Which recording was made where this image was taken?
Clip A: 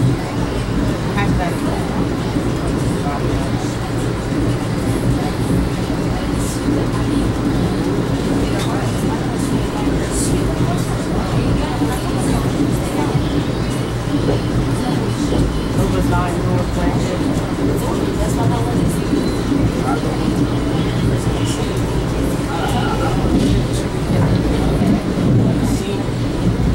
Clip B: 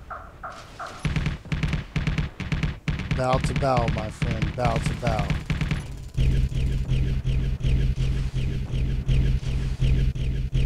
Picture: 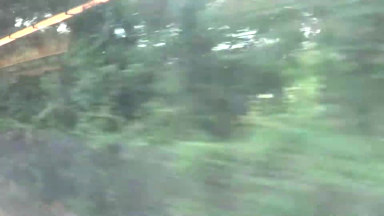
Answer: A